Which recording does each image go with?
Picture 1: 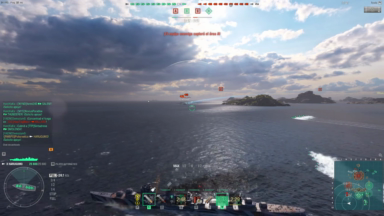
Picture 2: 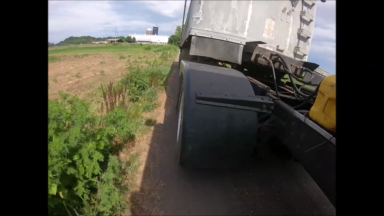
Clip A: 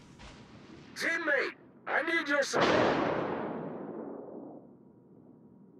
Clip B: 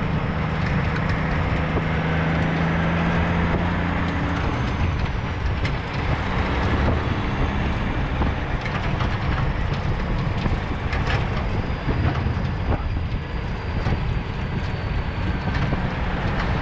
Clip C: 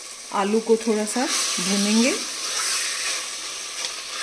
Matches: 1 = A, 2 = B